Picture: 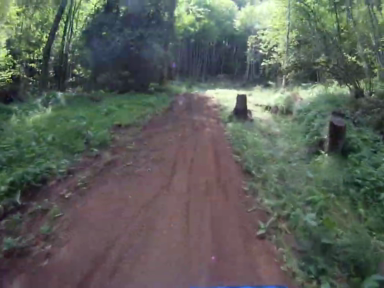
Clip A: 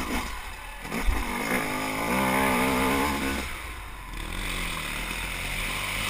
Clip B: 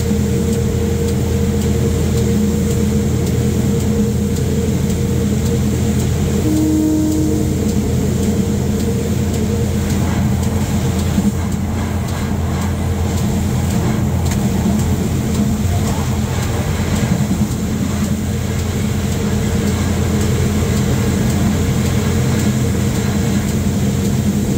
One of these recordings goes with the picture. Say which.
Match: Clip A